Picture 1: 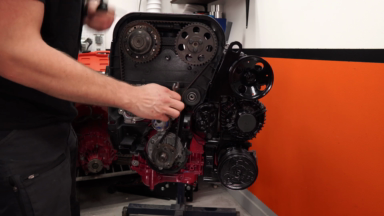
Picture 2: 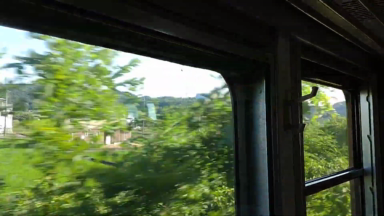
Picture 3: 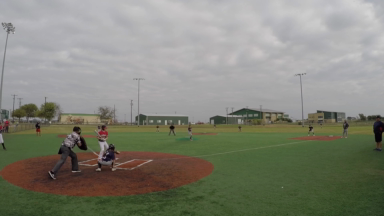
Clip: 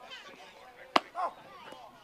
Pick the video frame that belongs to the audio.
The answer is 3